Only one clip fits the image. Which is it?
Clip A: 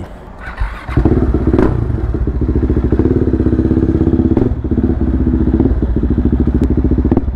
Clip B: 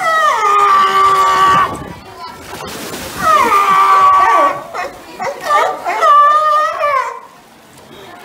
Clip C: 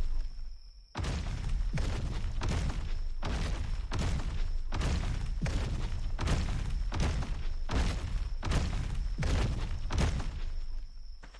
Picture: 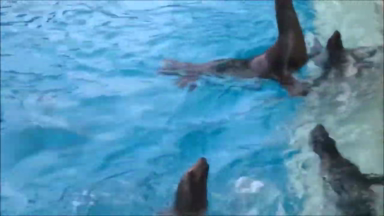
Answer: B